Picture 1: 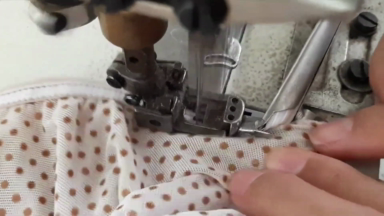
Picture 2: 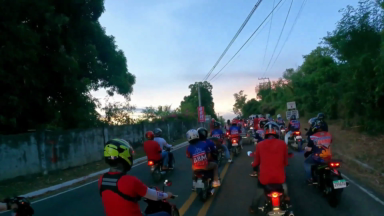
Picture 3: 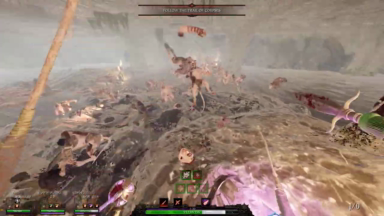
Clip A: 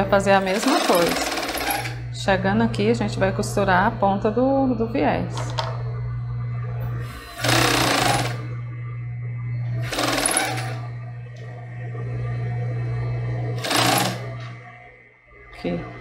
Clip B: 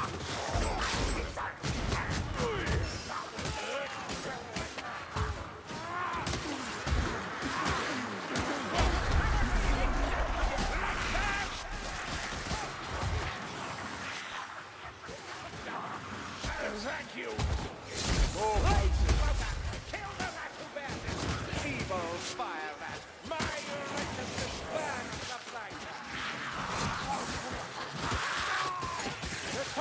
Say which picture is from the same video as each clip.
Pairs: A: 1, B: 3